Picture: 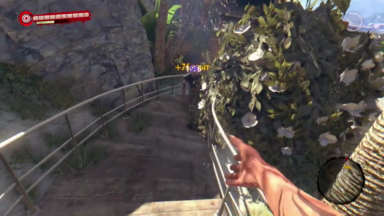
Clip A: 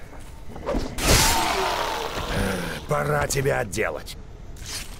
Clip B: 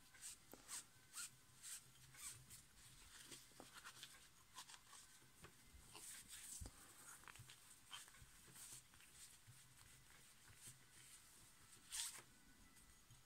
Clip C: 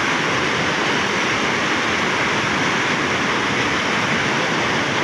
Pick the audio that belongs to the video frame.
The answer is A